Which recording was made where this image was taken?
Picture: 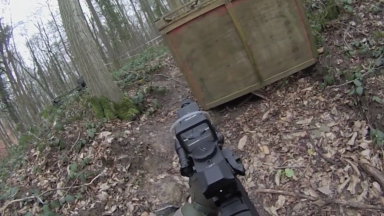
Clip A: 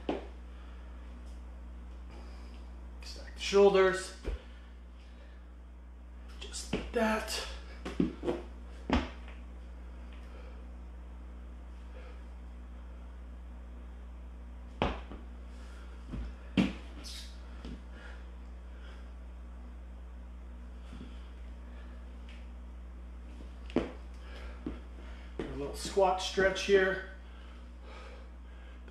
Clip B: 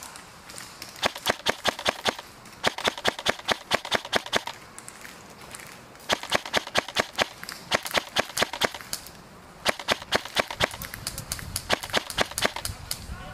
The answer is B